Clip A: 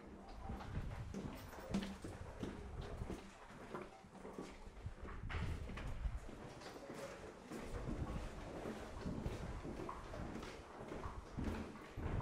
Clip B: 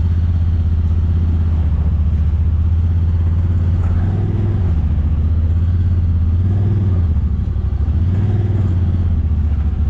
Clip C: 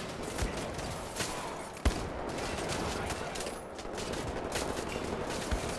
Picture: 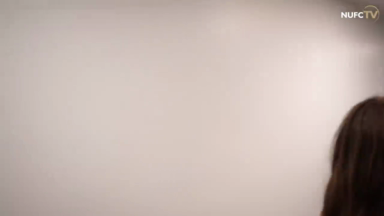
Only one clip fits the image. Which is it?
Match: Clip A